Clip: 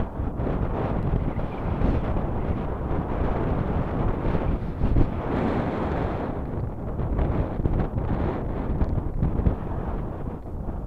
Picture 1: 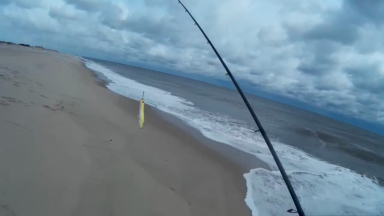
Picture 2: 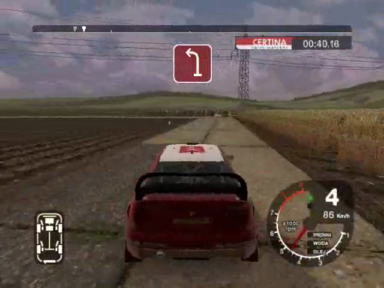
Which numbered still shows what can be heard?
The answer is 1